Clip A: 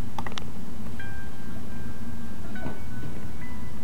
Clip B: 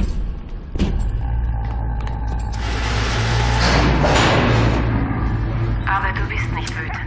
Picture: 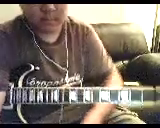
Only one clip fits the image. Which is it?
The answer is A